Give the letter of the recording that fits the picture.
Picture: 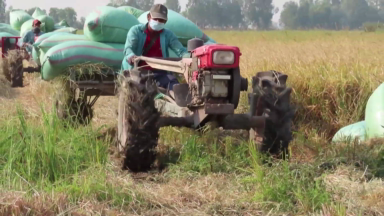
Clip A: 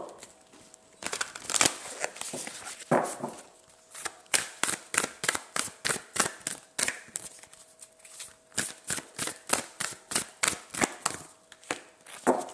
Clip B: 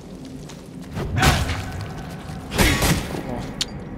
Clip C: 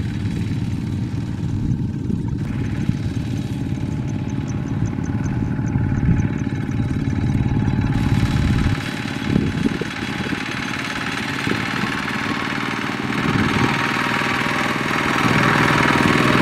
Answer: C